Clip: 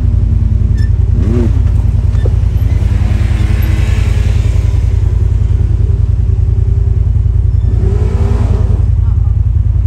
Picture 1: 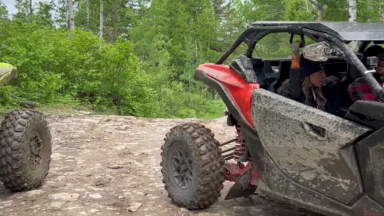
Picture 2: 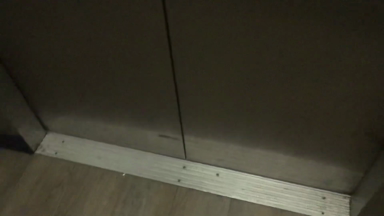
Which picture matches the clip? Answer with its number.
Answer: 1